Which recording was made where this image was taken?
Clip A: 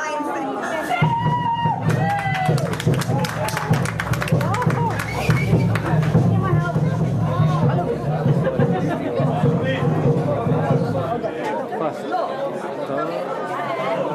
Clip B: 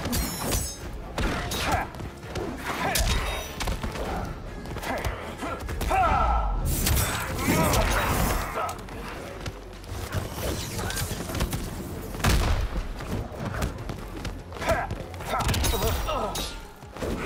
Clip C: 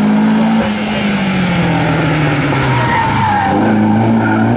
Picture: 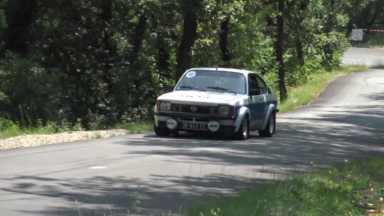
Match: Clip C